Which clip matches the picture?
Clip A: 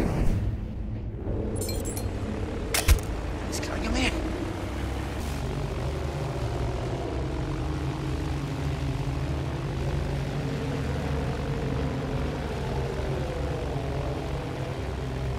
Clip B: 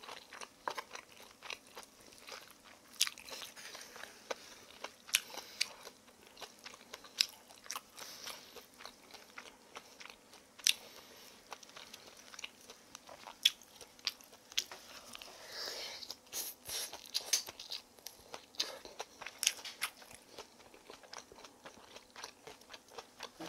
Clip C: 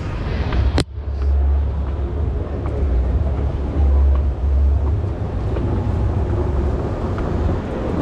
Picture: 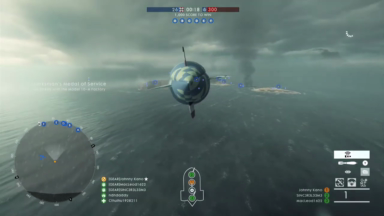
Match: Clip A